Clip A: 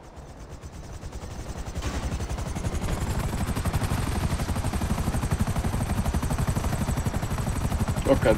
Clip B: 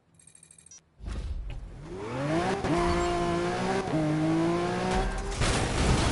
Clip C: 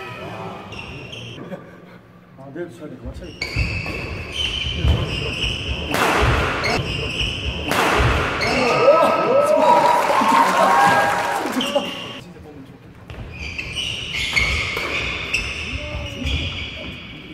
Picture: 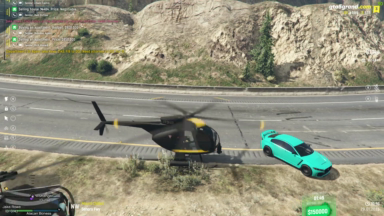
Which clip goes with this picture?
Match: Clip A